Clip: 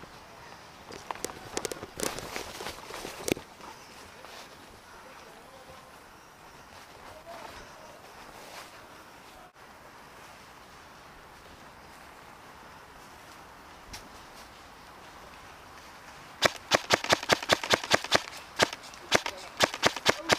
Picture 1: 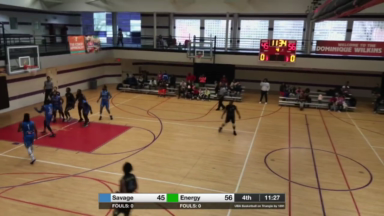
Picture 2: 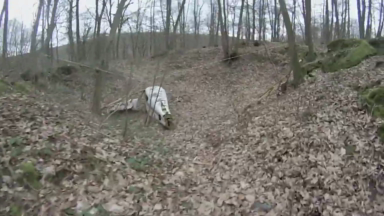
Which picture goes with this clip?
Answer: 2